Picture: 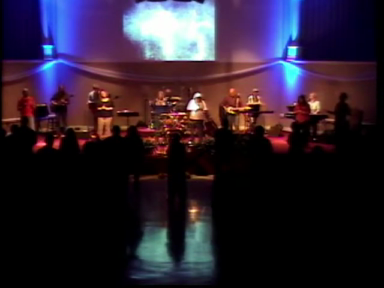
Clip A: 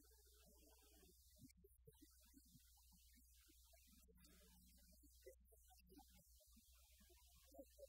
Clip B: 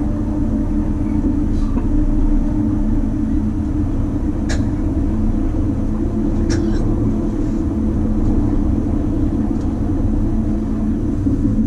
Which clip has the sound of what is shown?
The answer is A